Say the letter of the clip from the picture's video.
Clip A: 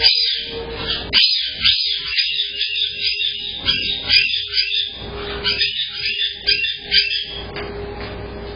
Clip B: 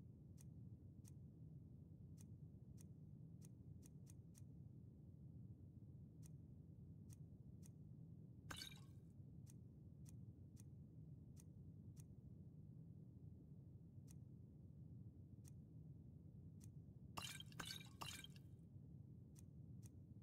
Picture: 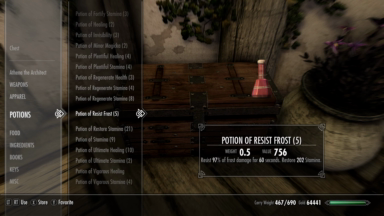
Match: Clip B